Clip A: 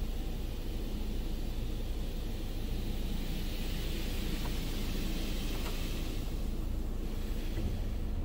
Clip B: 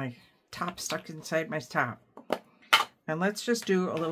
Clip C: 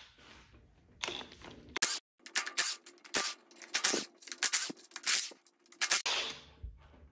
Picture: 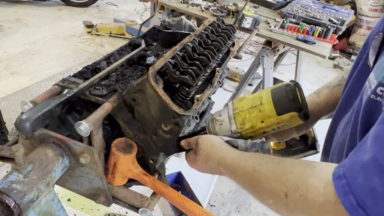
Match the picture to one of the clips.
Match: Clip C